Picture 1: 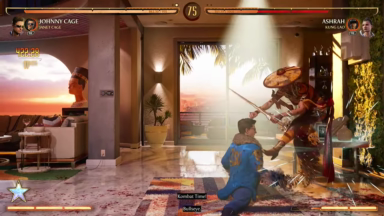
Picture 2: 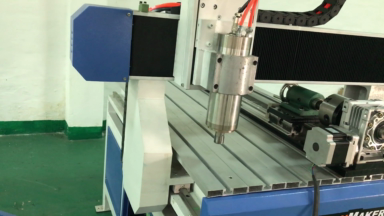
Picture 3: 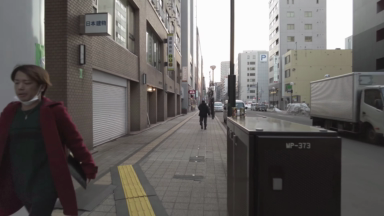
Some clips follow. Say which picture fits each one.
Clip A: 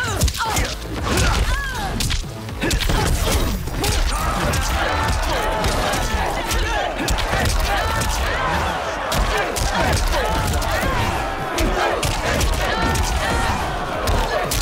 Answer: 1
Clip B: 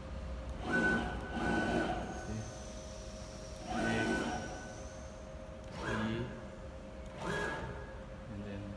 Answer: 2